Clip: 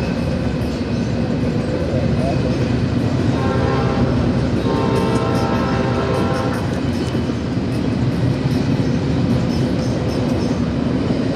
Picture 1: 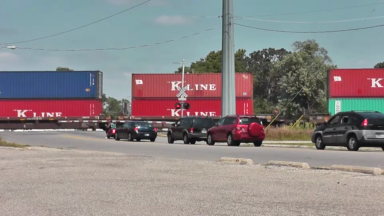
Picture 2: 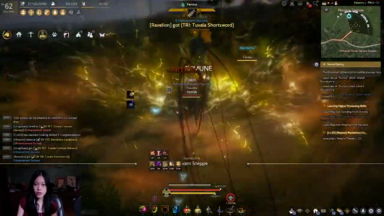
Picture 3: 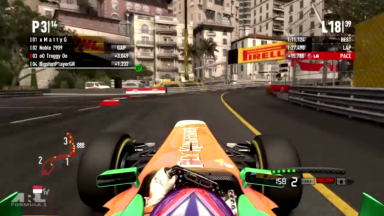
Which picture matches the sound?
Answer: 1